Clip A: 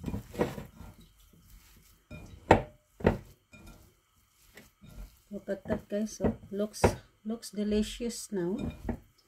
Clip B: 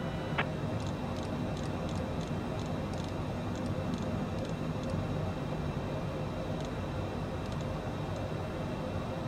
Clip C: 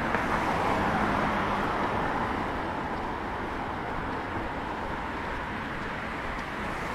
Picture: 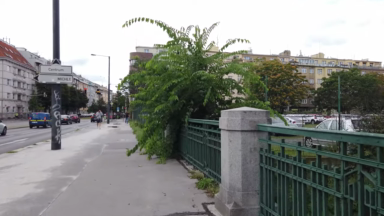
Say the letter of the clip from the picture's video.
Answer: C